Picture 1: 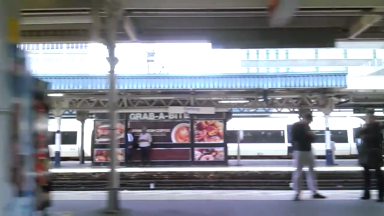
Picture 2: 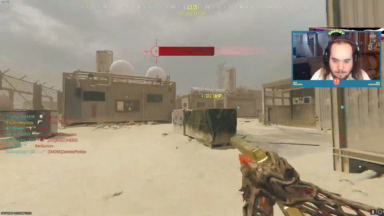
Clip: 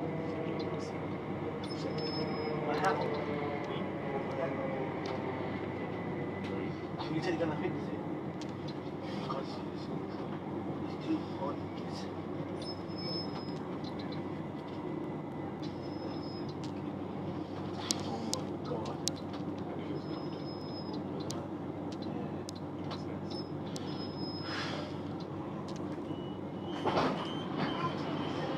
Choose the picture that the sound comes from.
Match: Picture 1